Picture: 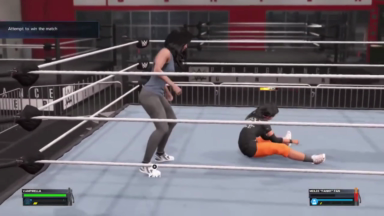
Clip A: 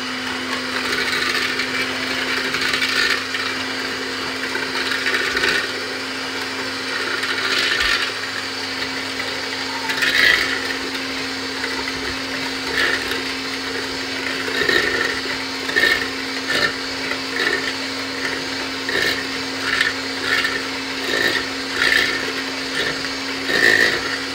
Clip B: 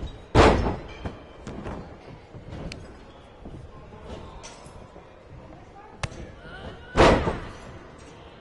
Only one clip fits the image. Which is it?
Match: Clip B